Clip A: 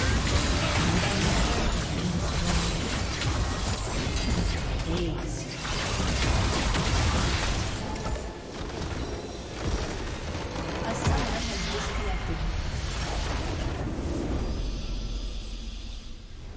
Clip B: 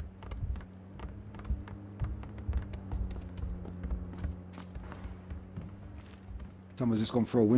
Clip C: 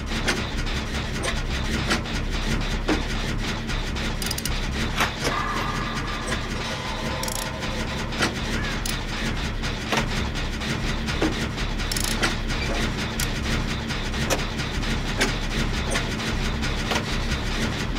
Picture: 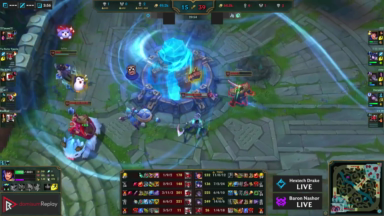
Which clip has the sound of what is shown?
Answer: A